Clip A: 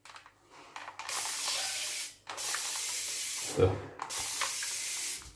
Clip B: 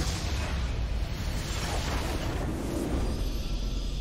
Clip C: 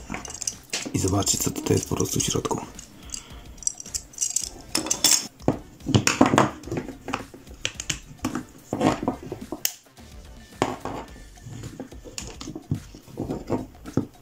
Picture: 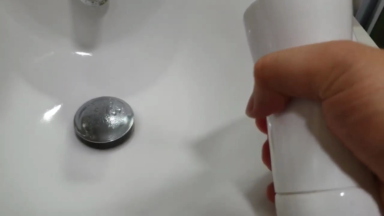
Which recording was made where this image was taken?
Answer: A